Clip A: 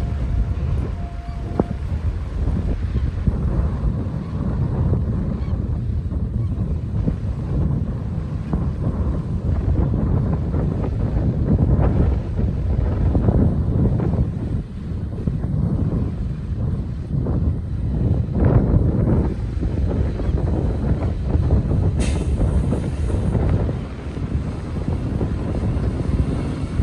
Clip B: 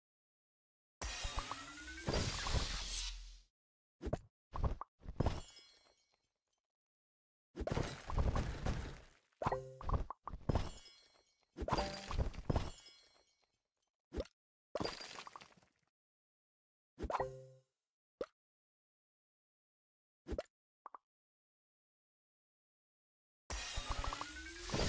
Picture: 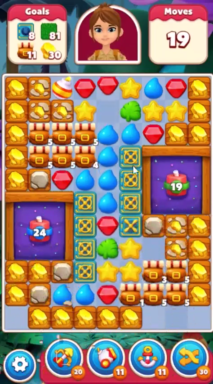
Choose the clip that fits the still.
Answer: B